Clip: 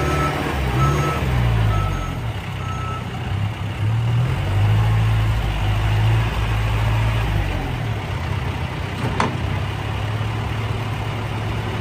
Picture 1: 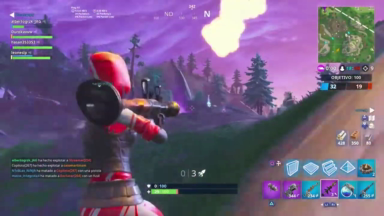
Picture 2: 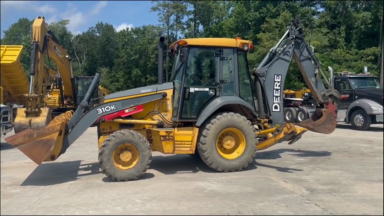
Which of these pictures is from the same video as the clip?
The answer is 2